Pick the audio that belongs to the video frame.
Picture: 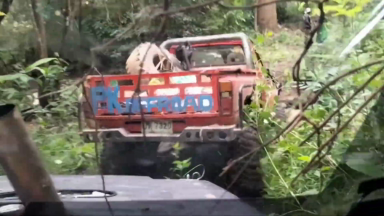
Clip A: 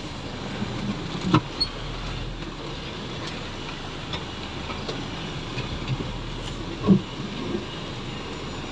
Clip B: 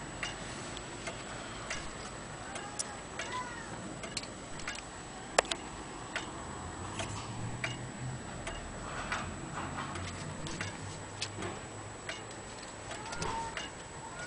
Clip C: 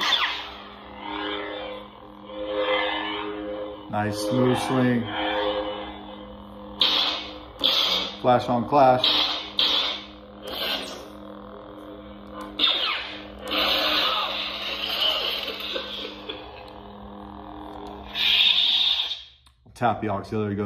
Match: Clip A